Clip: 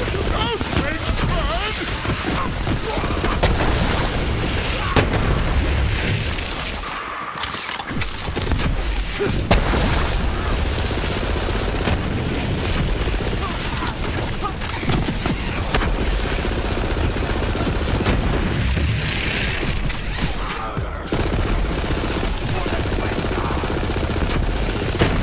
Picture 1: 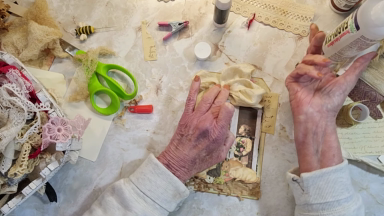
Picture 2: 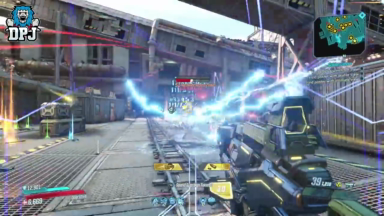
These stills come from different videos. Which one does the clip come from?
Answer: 2